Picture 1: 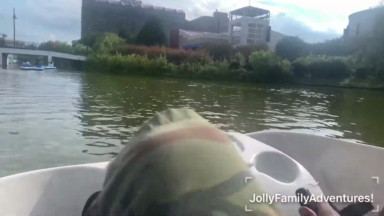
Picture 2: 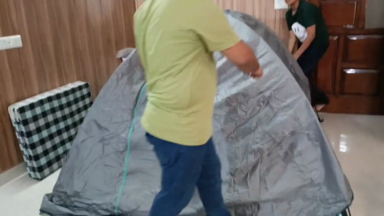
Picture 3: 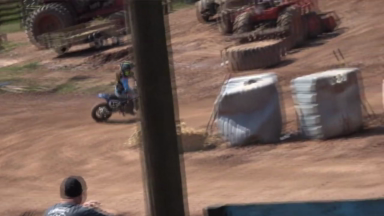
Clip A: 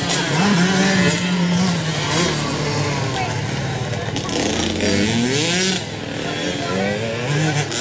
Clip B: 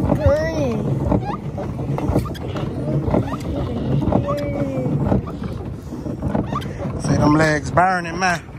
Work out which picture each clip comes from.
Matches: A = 3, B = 1